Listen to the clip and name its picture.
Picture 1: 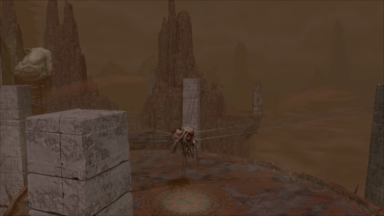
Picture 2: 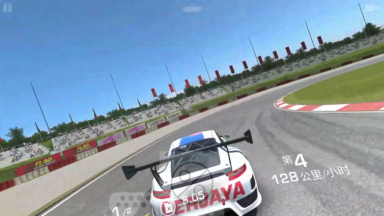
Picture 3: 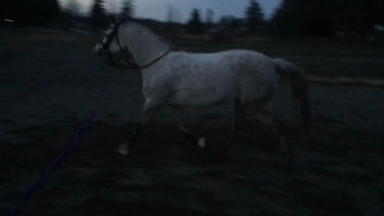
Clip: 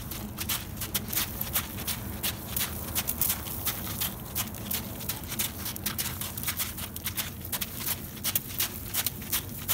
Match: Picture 3